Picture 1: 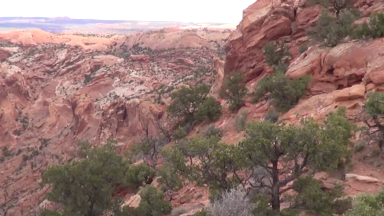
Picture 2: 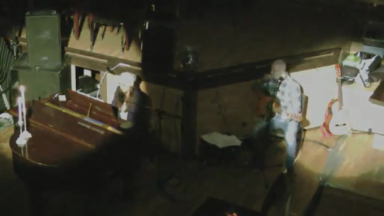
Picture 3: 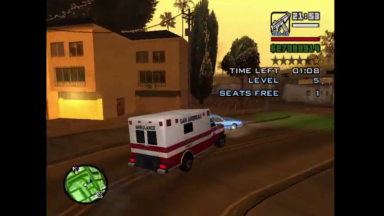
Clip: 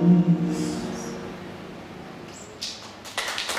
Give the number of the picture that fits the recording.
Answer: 2